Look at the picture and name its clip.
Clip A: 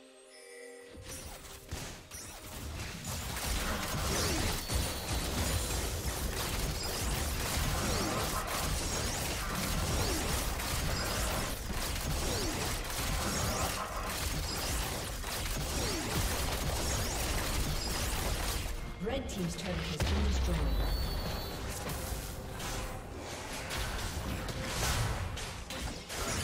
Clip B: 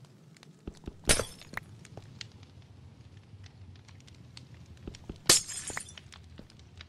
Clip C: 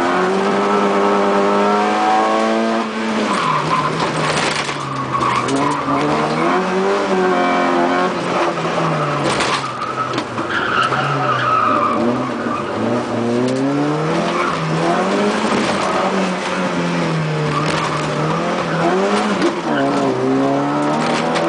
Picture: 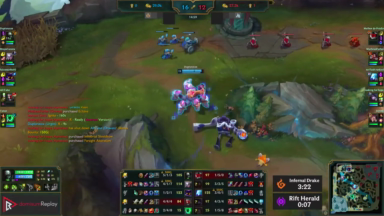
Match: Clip A